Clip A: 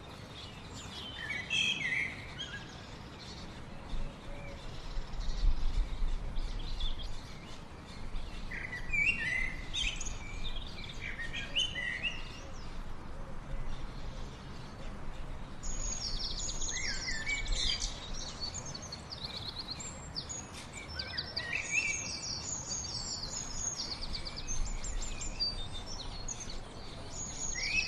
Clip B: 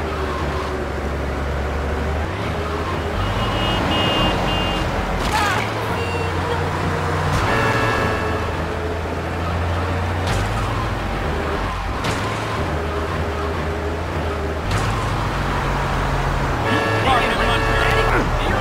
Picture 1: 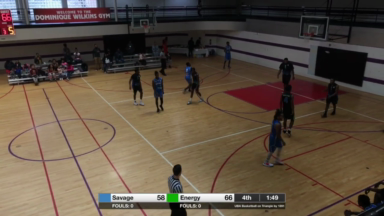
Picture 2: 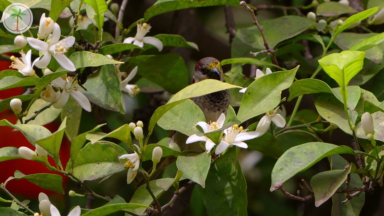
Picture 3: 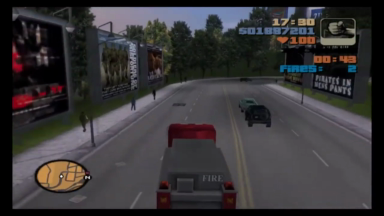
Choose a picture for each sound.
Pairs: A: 2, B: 3